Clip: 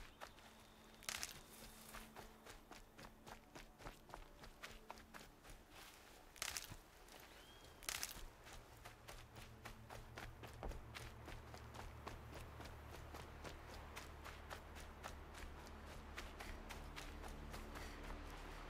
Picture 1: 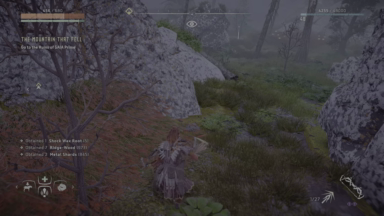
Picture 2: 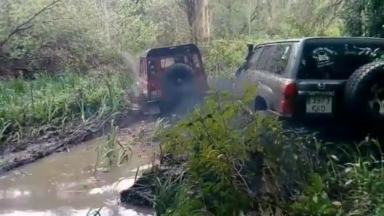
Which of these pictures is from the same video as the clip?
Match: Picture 1